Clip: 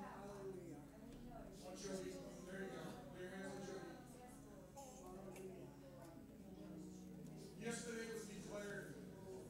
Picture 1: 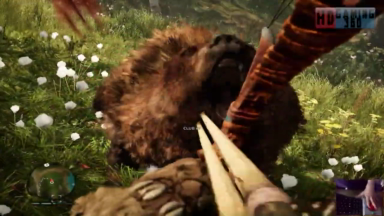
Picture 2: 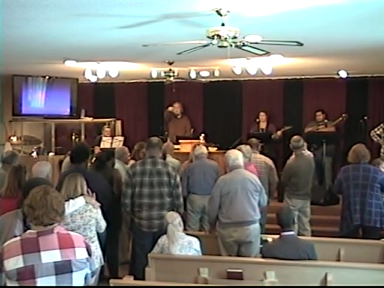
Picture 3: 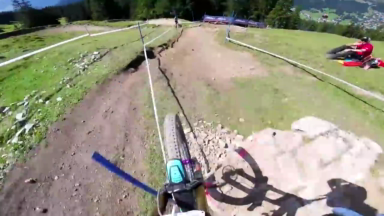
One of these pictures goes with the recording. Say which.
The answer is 2